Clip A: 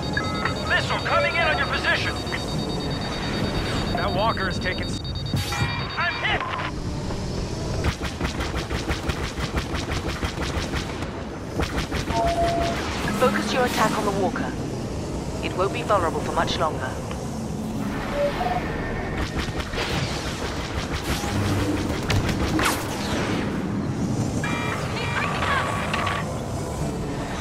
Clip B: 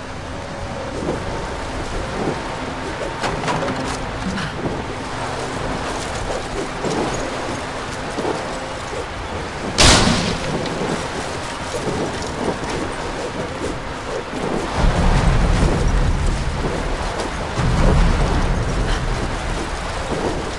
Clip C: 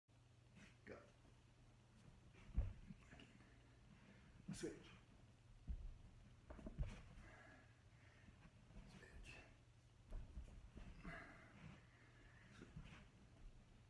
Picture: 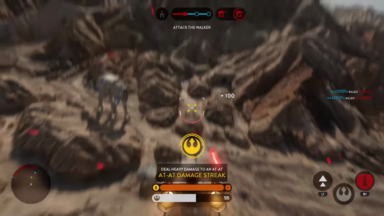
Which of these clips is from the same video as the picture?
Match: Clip A